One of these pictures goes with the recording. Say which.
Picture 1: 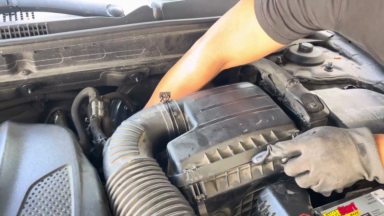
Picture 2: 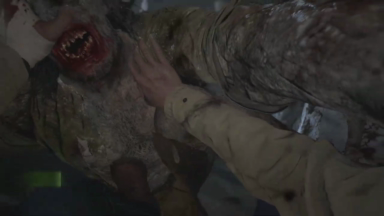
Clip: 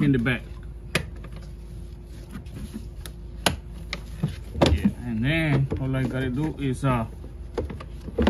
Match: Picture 1